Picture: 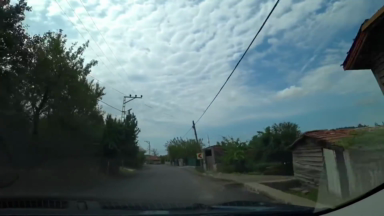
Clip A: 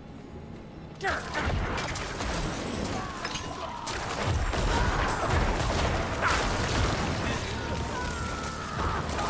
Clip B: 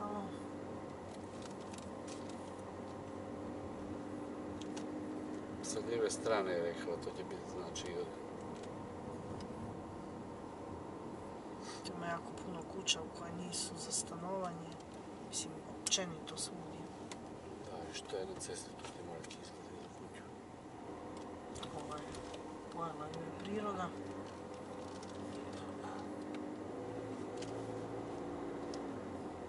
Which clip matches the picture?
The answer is B